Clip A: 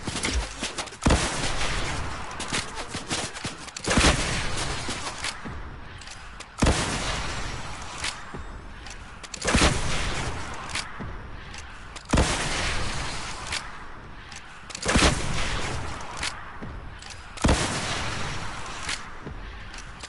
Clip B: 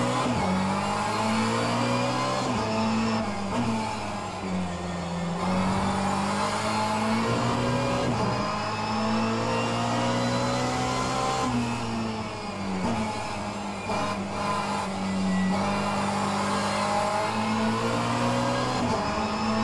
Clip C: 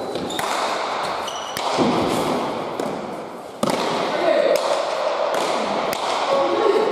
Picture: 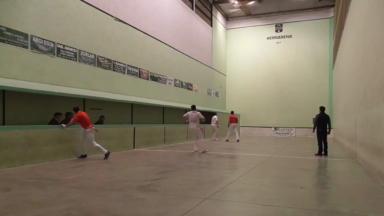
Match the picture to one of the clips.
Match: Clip C